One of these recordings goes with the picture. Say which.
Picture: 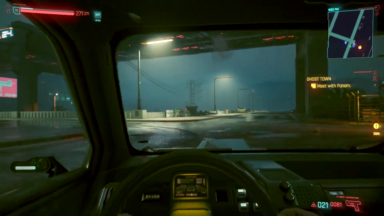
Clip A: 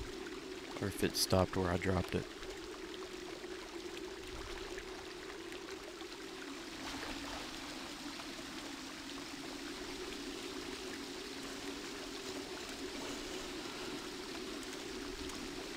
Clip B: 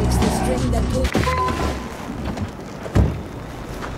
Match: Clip B